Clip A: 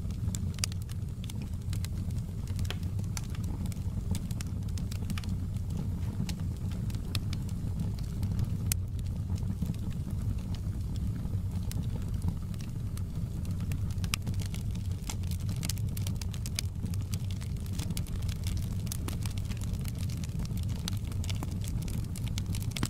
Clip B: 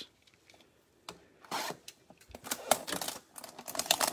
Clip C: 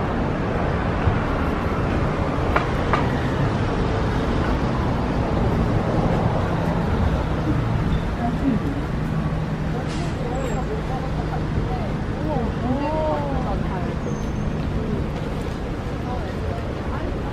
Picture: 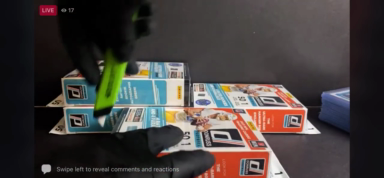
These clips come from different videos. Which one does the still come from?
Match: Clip B